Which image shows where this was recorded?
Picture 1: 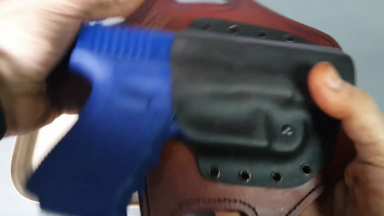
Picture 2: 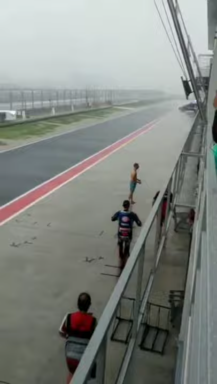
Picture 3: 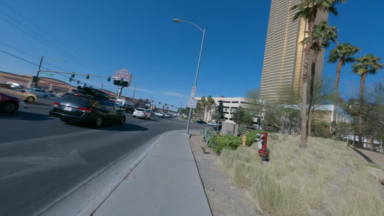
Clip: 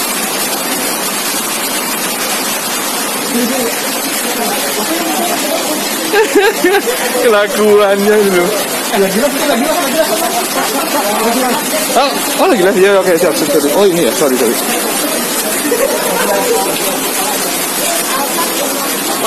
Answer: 2